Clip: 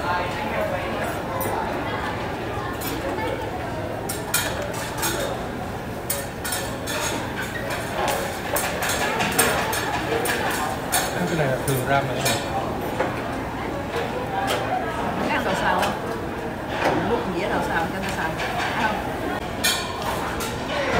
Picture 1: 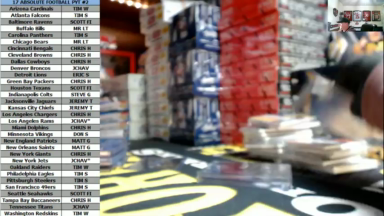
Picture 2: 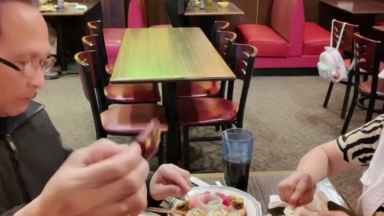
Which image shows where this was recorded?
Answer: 2